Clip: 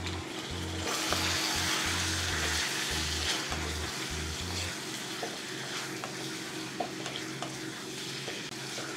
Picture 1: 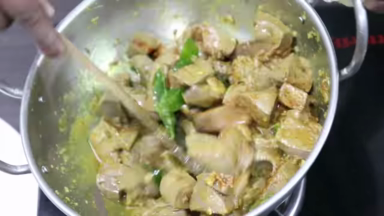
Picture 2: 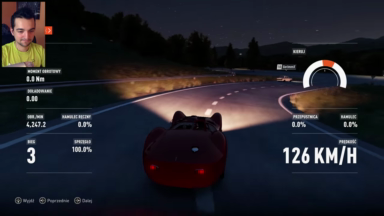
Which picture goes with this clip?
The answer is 1